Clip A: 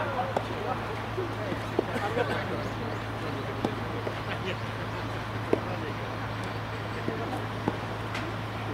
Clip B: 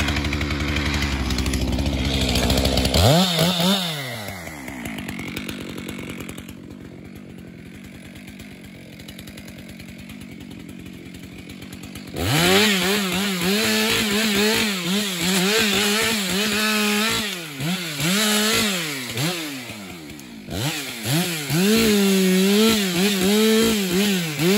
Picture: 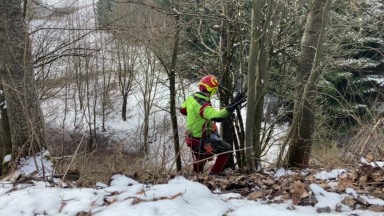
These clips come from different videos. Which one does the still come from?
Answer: B